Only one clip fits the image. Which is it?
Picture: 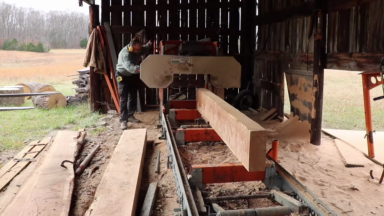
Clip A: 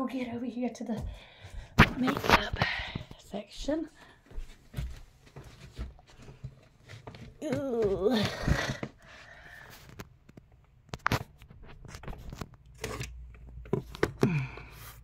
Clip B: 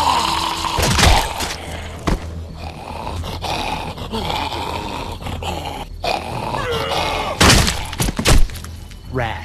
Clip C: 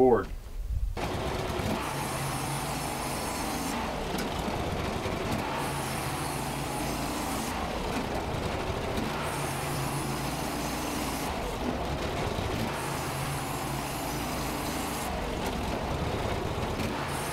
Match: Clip C